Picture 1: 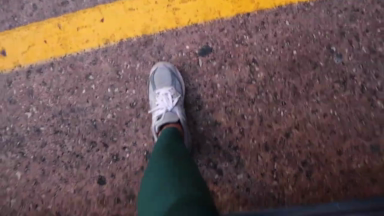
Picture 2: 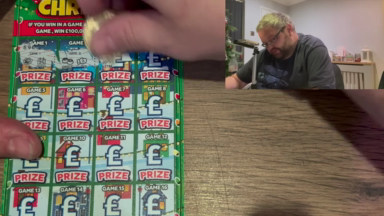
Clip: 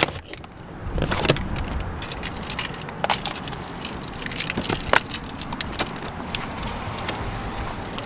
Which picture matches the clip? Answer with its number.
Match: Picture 1